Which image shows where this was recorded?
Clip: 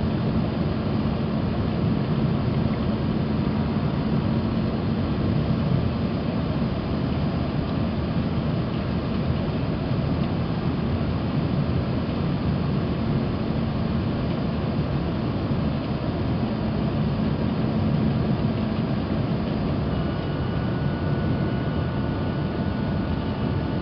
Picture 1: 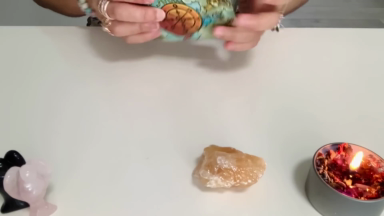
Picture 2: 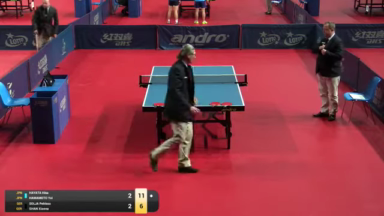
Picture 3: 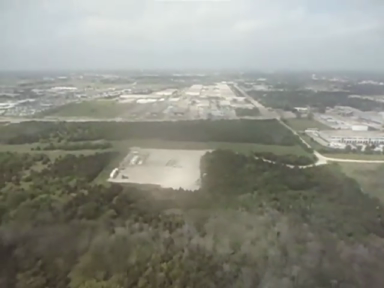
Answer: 3